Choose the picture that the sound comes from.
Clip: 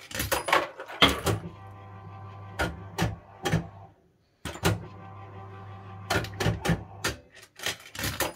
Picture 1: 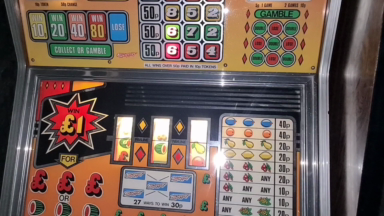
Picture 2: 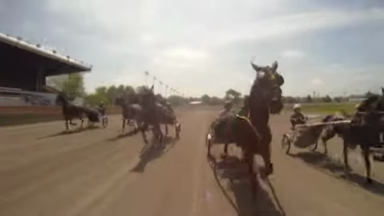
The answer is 1